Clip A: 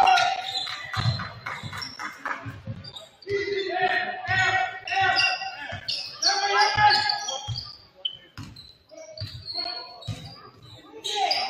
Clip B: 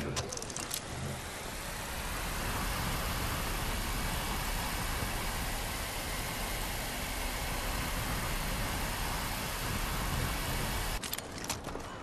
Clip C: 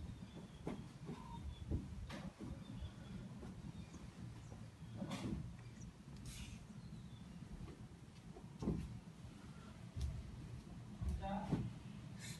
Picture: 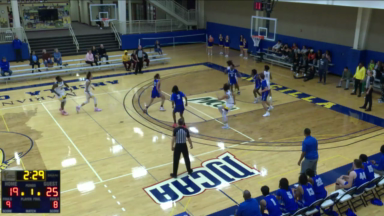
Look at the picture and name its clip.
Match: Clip A